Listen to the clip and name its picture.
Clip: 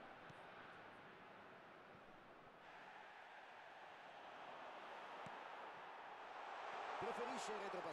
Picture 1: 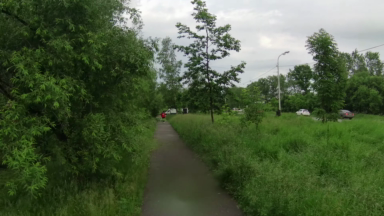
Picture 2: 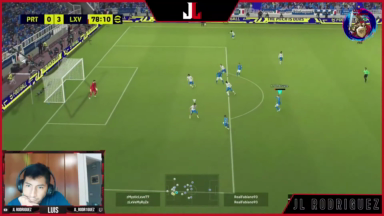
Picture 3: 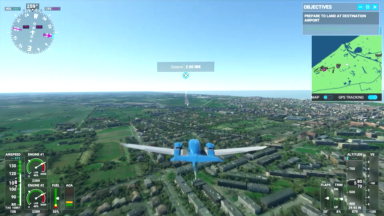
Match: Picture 2